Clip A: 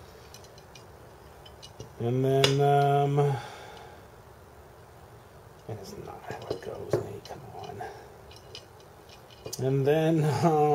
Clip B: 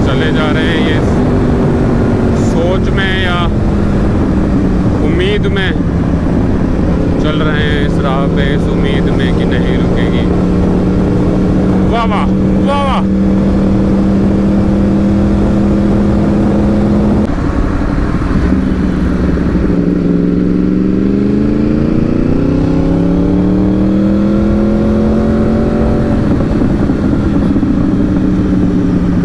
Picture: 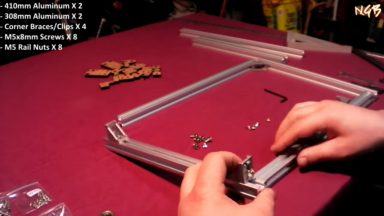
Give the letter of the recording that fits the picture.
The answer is A